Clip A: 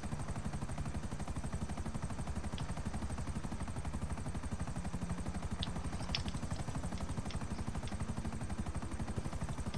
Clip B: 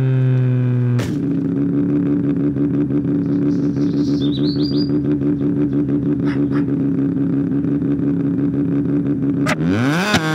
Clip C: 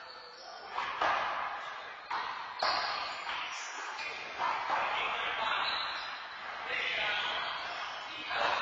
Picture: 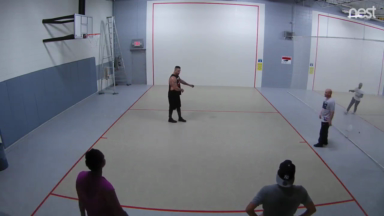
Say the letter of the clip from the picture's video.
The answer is C